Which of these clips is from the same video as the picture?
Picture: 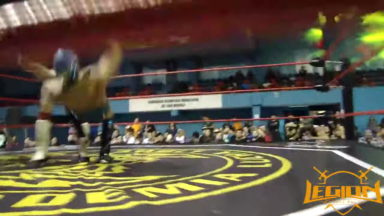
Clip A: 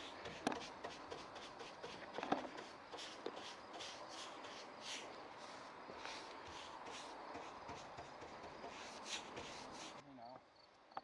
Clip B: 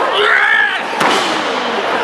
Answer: B